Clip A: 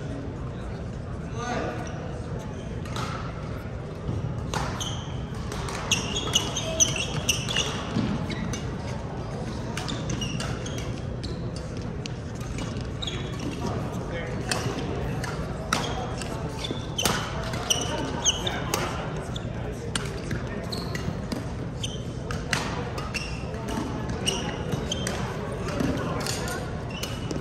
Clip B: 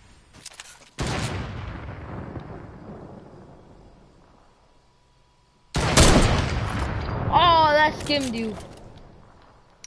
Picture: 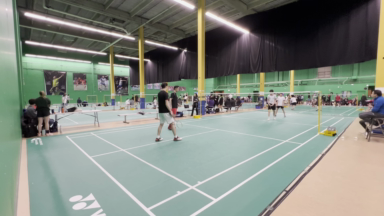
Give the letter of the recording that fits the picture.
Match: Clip A